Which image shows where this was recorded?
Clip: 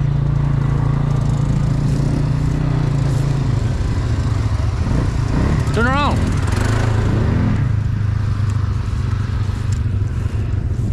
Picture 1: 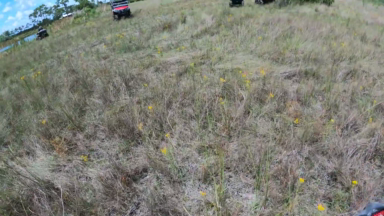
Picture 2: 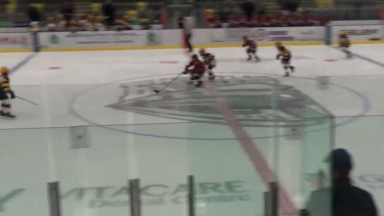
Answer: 1